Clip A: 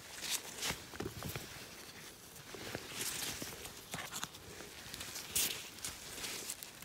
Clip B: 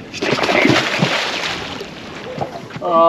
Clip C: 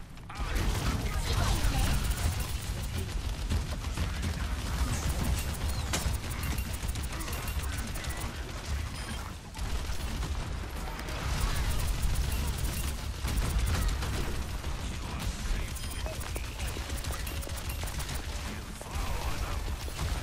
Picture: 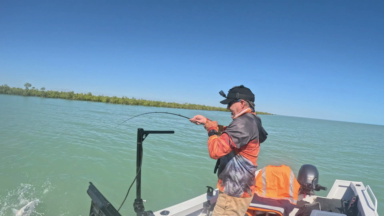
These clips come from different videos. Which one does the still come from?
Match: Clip B